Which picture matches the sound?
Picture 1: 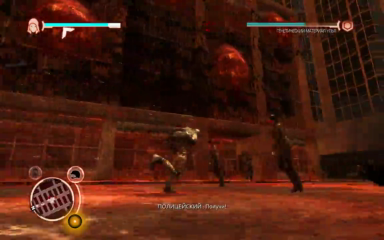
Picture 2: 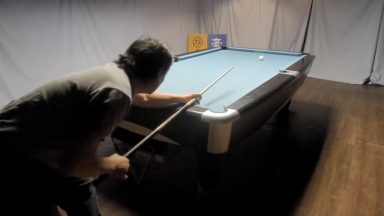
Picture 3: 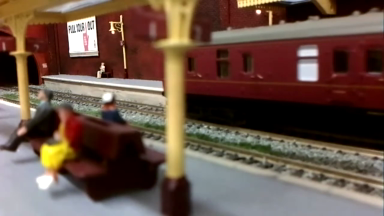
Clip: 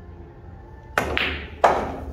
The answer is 2